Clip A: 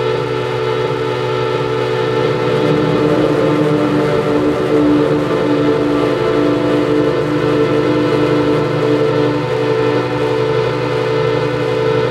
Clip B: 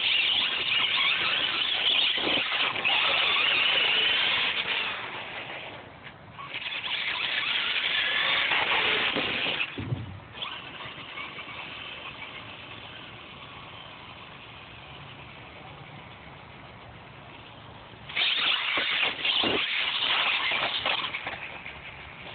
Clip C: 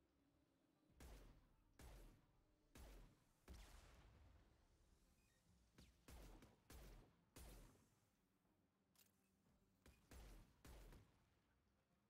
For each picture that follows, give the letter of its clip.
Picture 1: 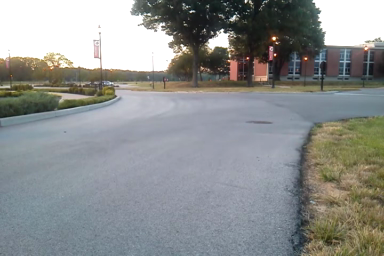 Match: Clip B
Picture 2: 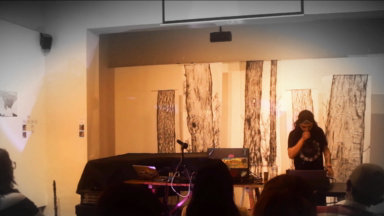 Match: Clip A